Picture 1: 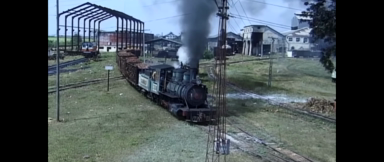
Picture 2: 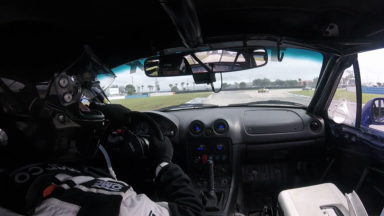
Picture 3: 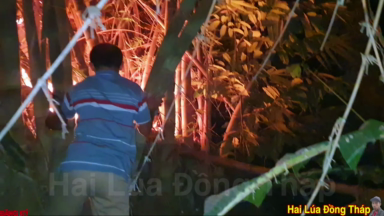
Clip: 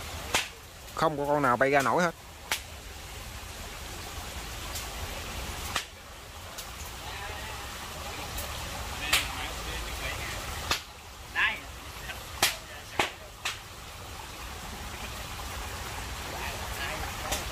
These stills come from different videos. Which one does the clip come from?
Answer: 3